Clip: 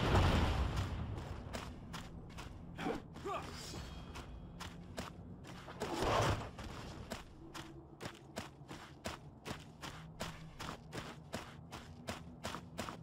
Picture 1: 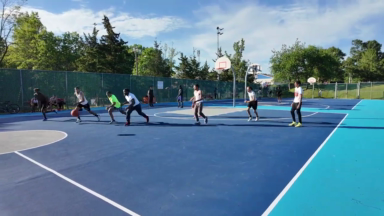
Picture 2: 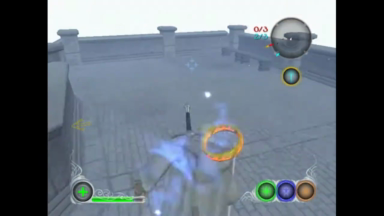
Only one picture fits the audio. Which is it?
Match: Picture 2